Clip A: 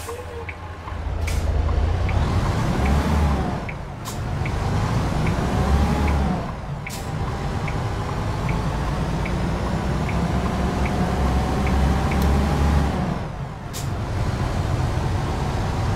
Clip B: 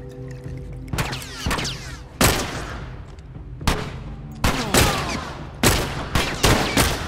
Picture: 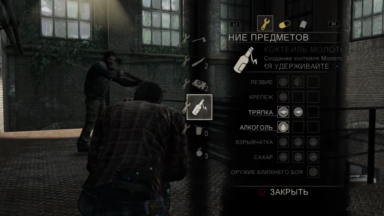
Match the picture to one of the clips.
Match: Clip B